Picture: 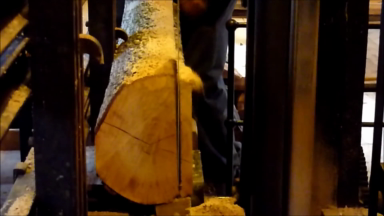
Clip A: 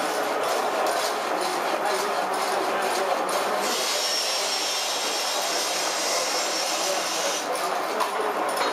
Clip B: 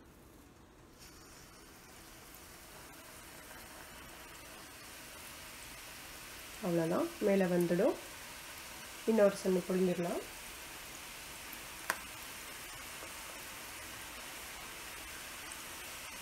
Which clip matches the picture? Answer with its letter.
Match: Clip A